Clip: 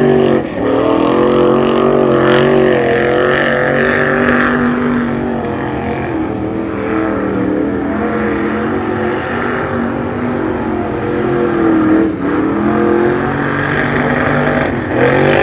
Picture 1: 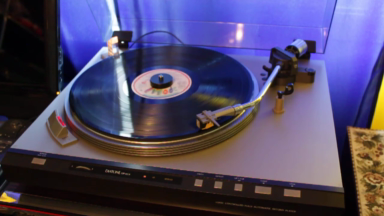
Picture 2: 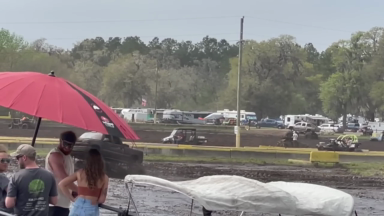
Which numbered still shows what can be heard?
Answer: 2